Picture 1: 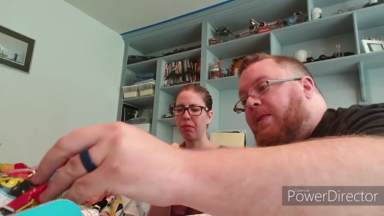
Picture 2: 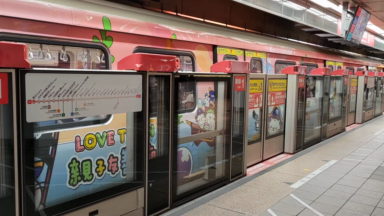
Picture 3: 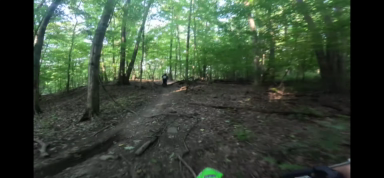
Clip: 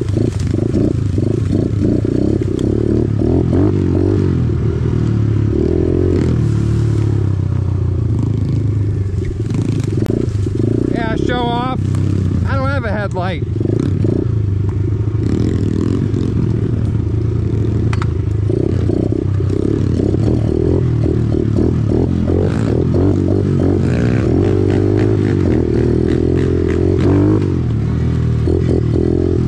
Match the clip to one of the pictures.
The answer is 3